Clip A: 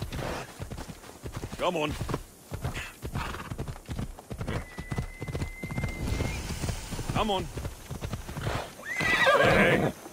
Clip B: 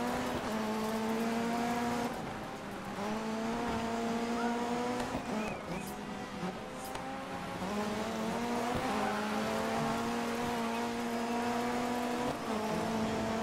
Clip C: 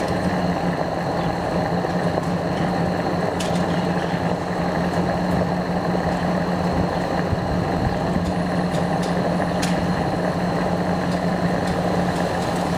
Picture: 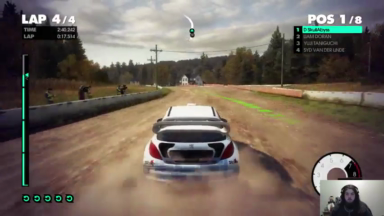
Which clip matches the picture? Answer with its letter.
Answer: B